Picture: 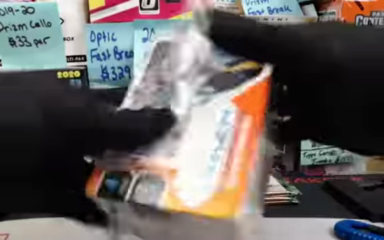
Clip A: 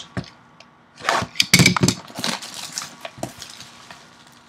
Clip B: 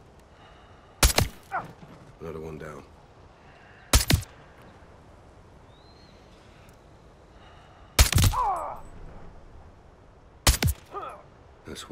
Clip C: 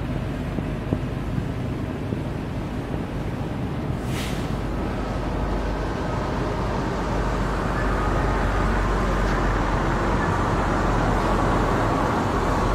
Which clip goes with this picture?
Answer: A